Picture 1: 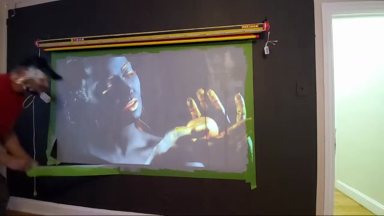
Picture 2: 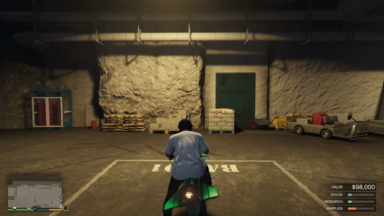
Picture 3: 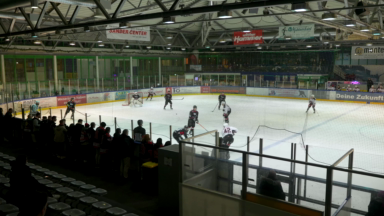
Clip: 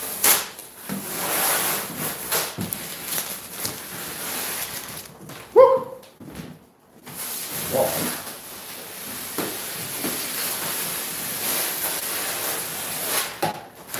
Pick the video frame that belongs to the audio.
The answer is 1